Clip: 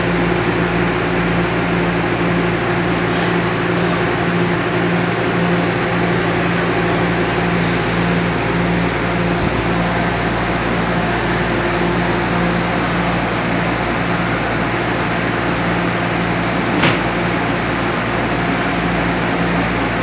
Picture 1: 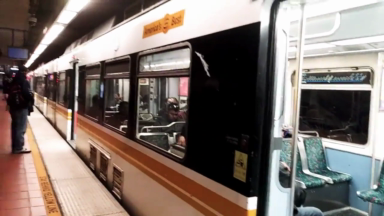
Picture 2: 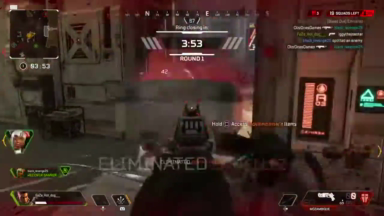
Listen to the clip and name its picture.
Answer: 1